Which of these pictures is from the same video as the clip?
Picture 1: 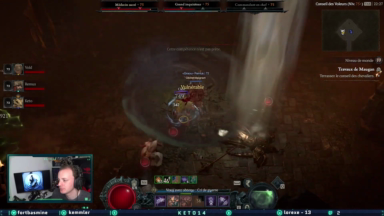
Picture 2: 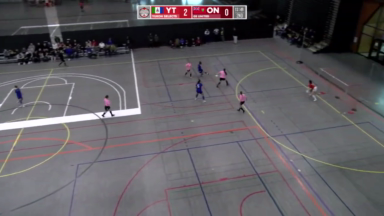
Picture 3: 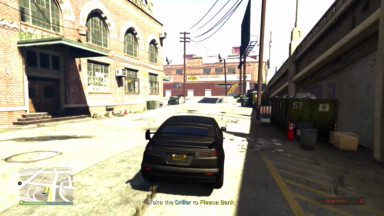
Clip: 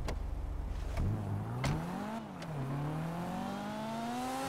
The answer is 3